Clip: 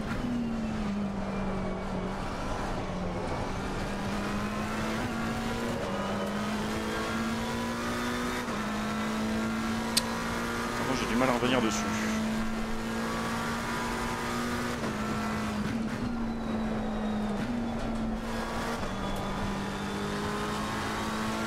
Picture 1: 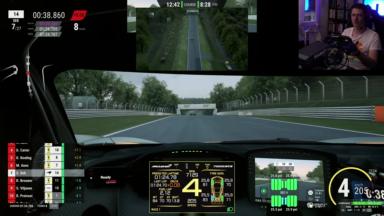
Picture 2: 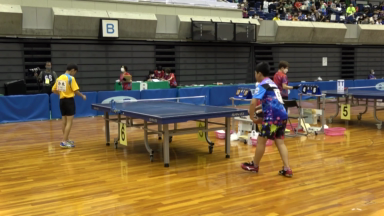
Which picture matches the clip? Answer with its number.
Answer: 1